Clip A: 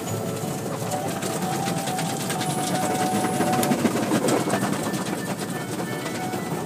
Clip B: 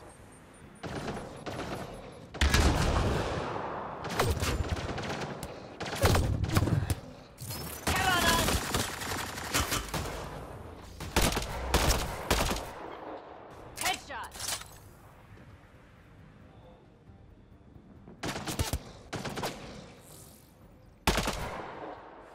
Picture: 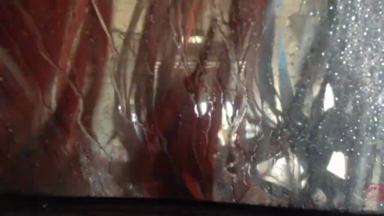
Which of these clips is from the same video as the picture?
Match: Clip A